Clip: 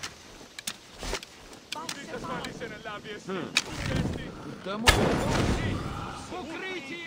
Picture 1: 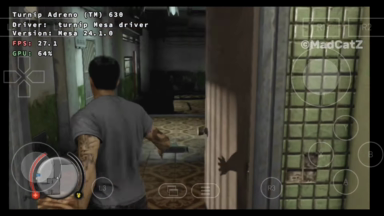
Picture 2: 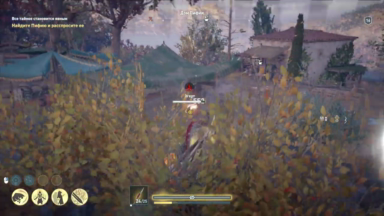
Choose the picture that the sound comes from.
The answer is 2